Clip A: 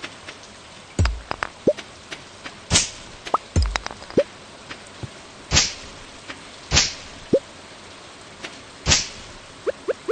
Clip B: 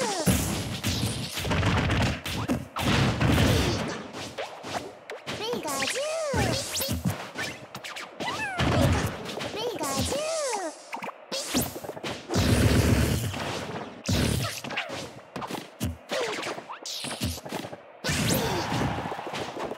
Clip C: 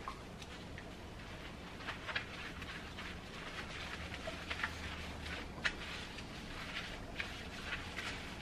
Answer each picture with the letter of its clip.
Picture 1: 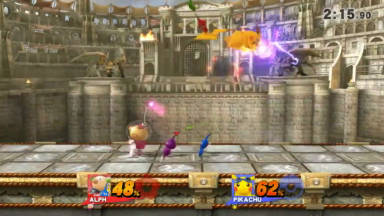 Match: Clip B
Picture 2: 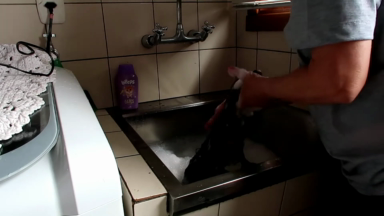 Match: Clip C